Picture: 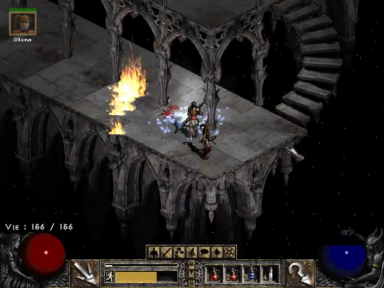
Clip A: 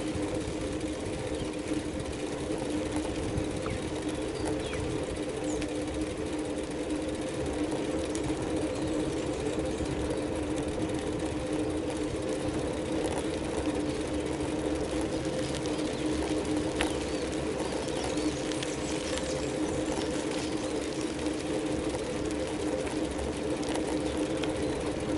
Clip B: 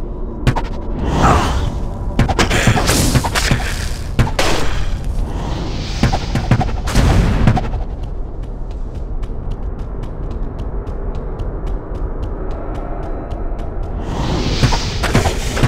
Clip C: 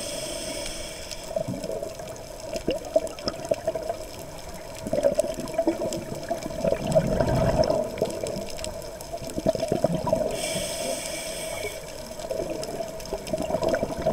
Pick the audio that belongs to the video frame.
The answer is B